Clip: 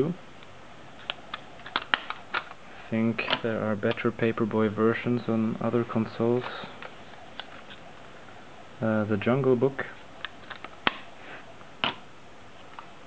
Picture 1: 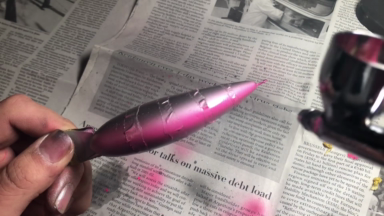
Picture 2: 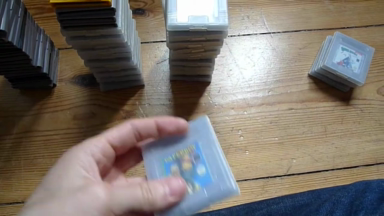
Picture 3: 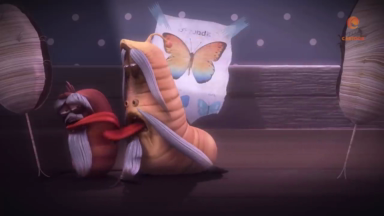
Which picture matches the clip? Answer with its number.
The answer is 2